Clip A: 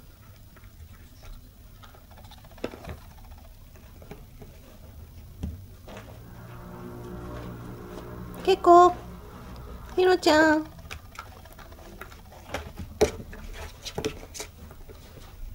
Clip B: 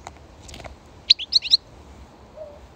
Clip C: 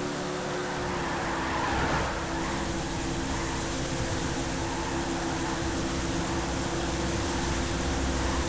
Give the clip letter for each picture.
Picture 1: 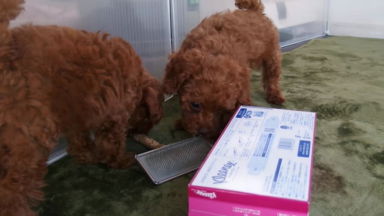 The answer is A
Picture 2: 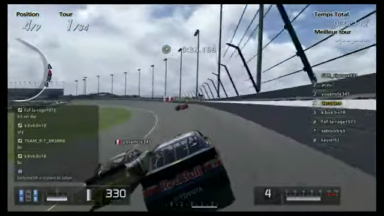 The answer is C